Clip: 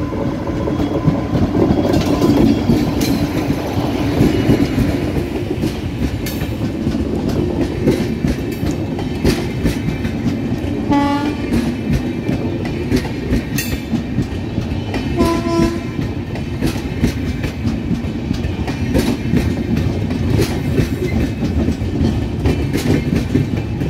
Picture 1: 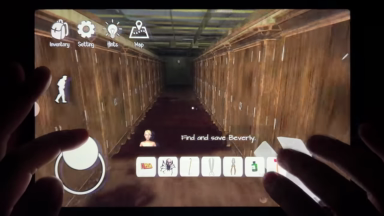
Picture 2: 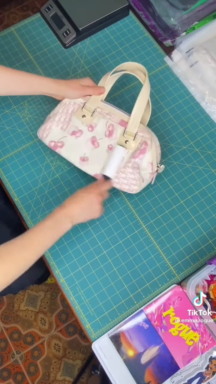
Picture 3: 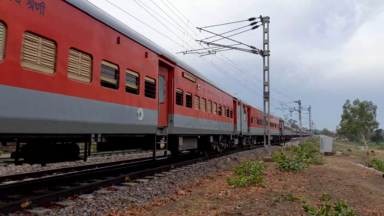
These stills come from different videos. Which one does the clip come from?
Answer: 3